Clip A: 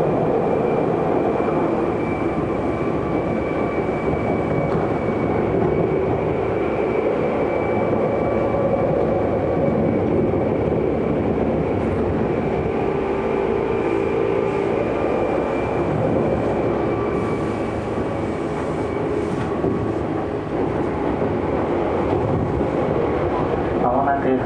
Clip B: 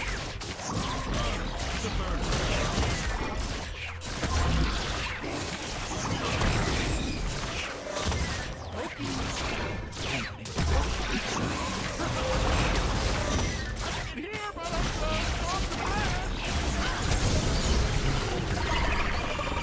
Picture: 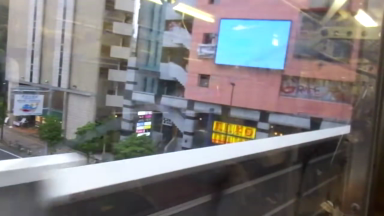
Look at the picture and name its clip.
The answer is A